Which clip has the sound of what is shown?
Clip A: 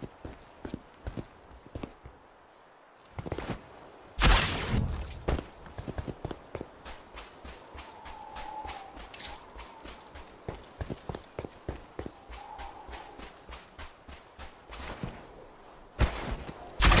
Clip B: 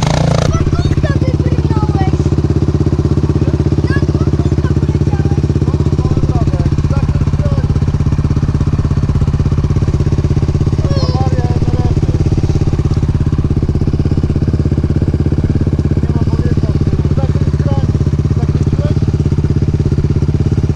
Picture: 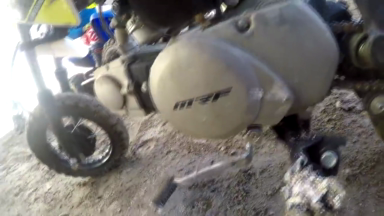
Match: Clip B